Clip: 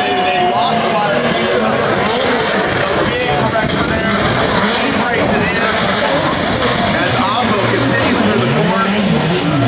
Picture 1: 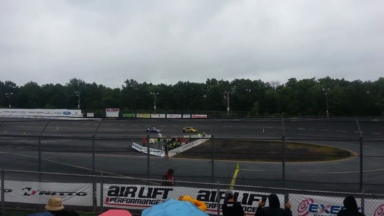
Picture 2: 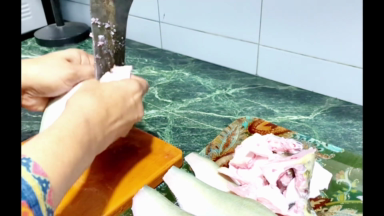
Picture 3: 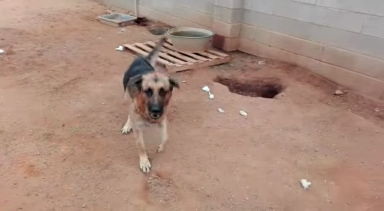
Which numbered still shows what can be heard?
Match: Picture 1